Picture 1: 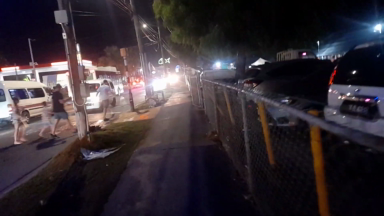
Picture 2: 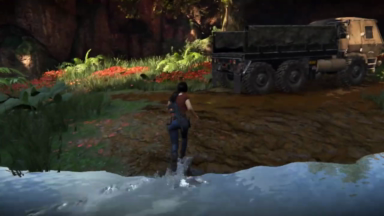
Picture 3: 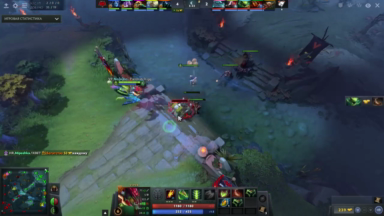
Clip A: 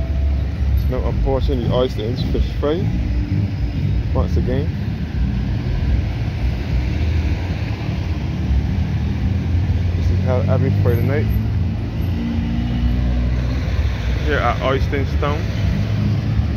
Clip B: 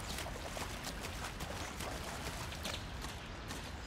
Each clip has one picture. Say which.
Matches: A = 1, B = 2